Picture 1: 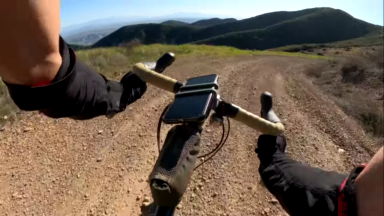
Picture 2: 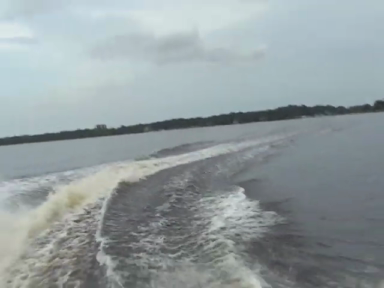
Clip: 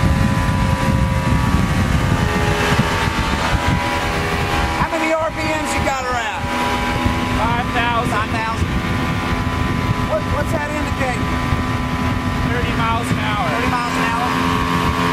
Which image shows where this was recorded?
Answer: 2